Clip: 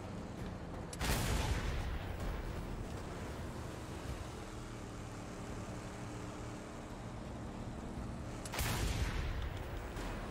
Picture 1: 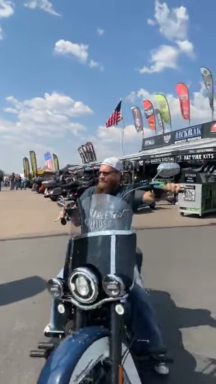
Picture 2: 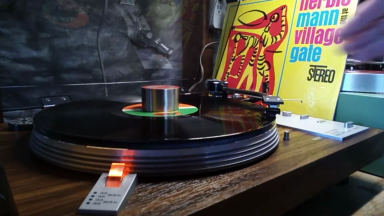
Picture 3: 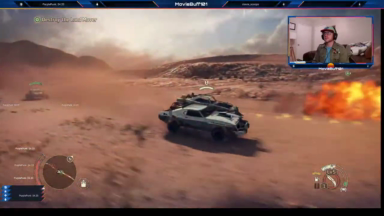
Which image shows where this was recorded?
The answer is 3